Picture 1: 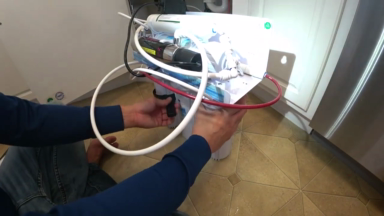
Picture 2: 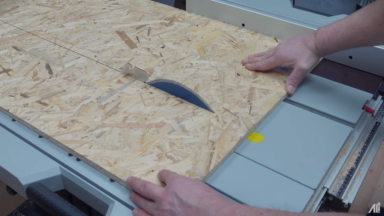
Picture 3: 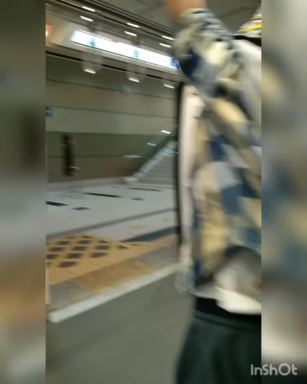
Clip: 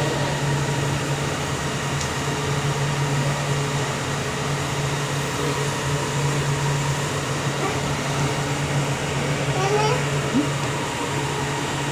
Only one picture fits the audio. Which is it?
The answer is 3